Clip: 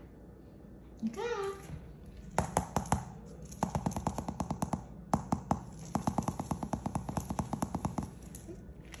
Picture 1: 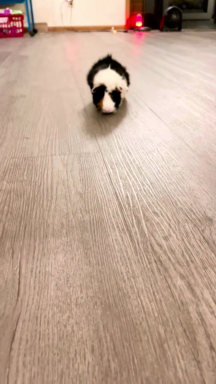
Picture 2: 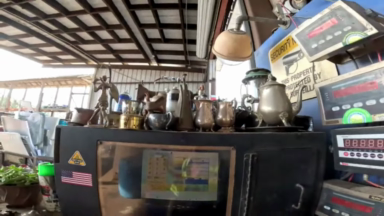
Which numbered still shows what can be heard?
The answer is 1